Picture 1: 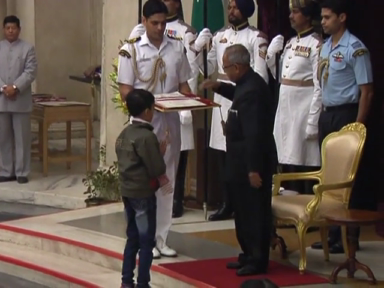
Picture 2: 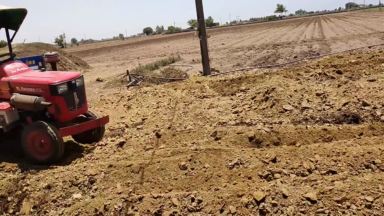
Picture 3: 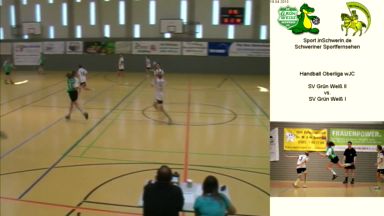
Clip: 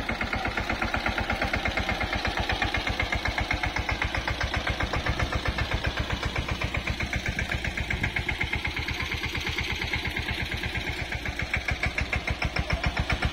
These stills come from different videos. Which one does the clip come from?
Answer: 2